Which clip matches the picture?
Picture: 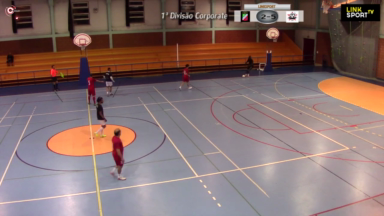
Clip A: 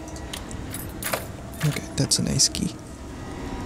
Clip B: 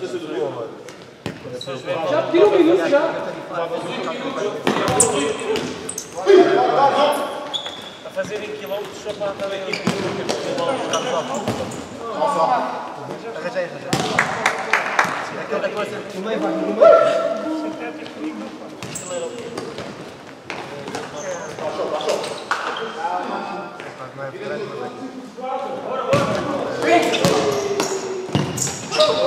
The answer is B